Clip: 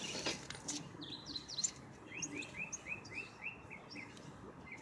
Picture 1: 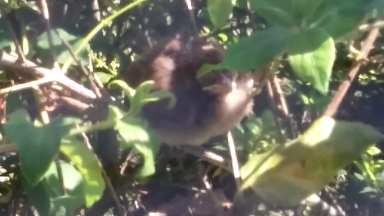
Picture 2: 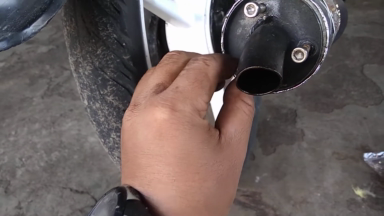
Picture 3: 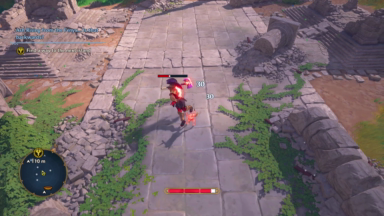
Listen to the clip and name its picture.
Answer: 1